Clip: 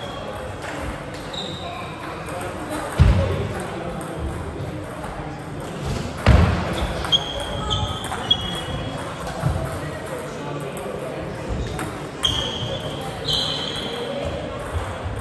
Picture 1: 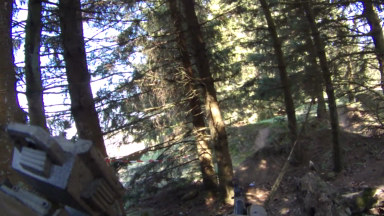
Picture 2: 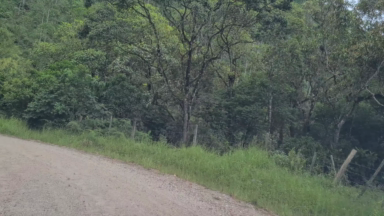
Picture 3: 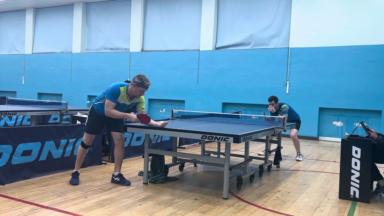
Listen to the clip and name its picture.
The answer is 3